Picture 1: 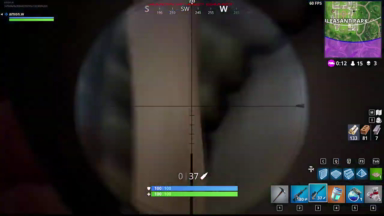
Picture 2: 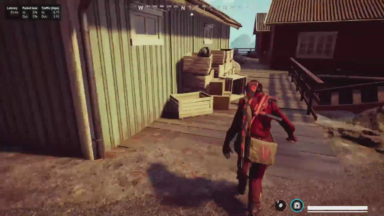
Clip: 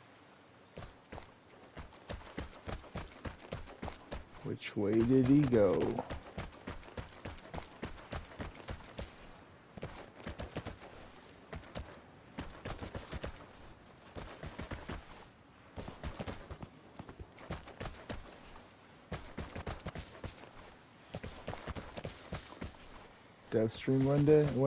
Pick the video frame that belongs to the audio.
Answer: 2